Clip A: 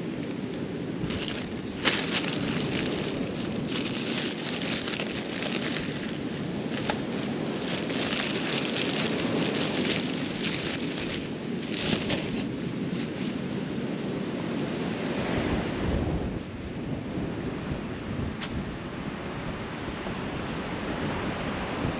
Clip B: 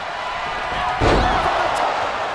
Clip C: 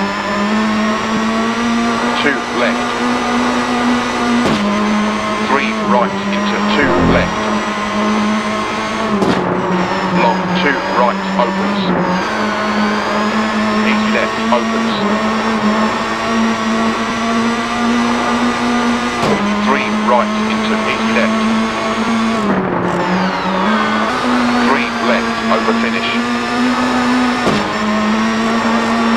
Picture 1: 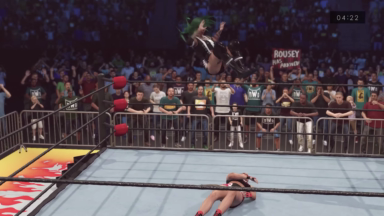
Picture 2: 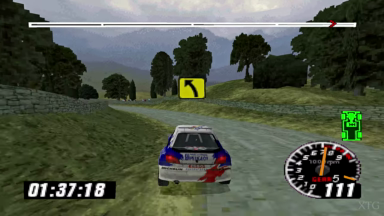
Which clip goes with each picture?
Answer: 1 B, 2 C